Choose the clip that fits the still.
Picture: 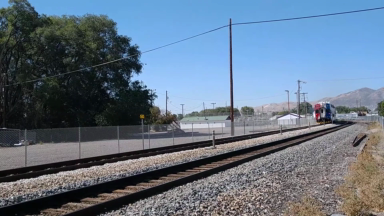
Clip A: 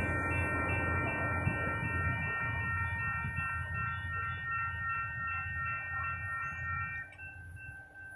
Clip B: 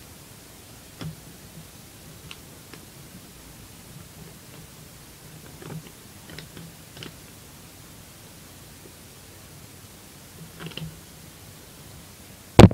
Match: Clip A